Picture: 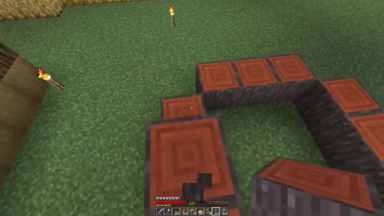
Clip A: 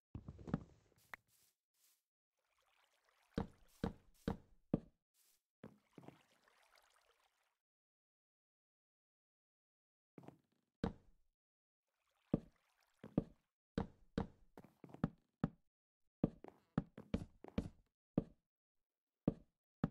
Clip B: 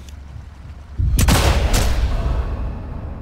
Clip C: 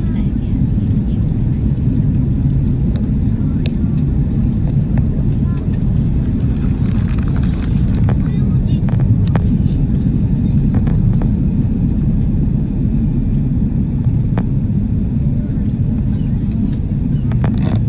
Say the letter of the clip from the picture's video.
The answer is A